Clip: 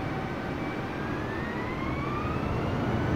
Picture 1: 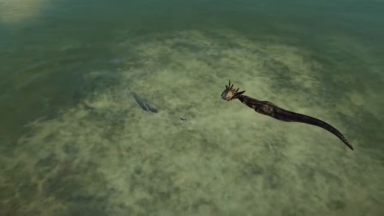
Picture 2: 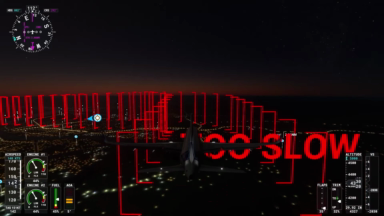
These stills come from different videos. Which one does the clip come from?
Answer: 2